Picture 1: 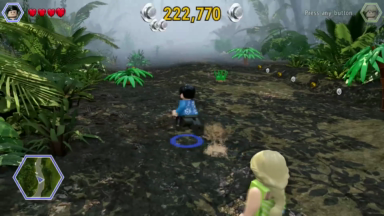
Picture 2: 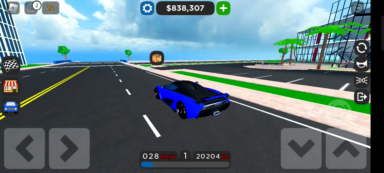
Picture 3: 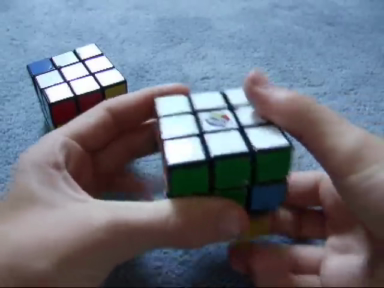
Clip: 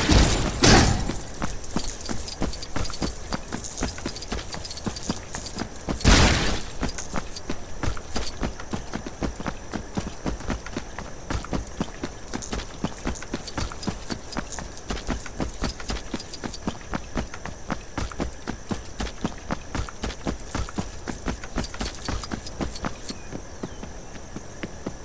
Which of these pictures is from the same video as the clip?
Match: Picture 1